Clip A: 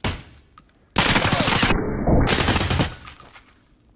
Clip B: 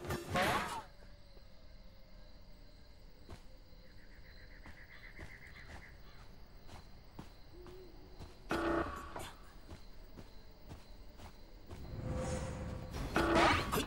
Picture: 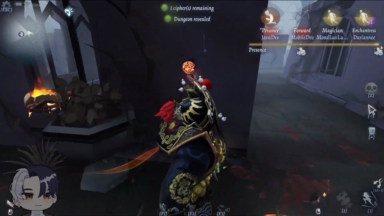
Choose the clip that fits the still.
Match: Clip B